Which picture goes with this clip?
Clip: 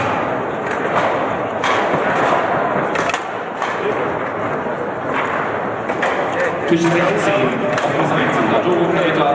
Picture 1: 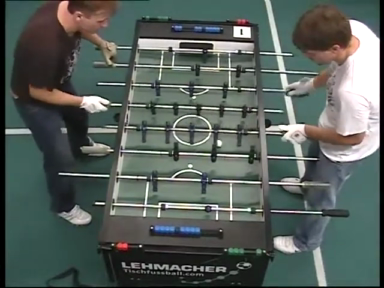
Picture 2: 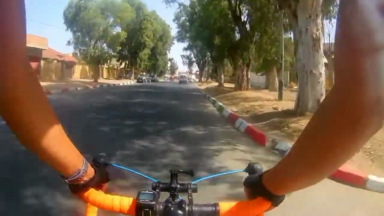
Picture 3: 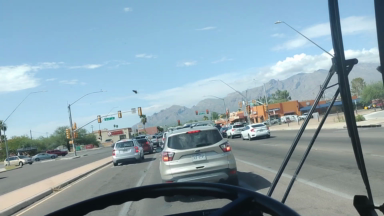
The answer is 1